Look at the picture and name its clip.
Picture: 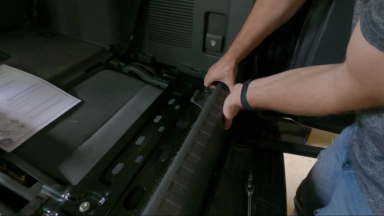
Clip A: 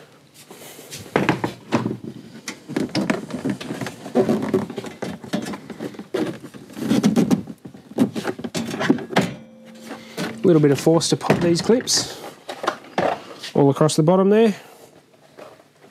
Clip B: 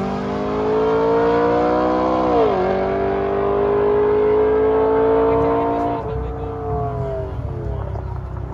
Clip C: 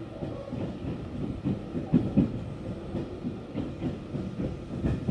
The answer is A